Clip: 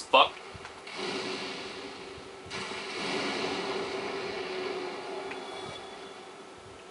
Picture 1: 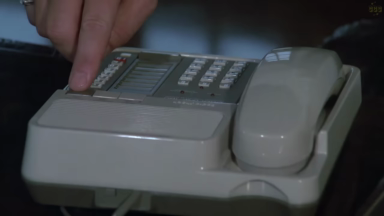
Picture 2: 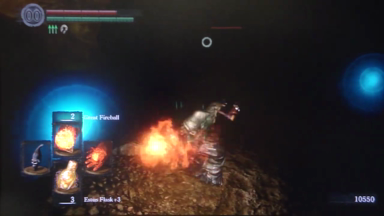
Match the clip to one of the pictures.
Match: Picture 2